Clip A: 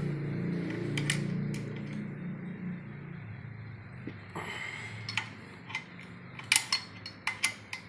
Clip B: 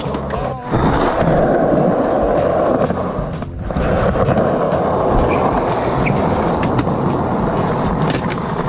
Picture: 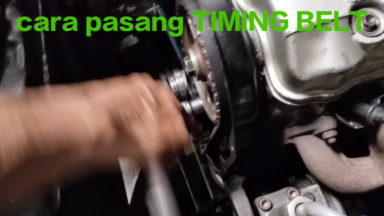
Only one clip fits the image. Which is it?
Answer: A